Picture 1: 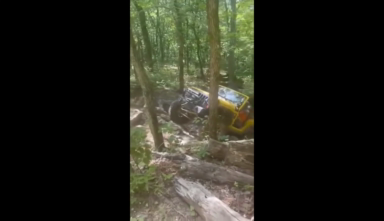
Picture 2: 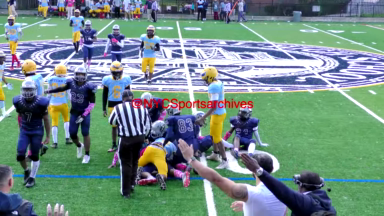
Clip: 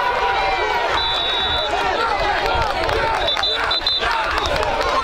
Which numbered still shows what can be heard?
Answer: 2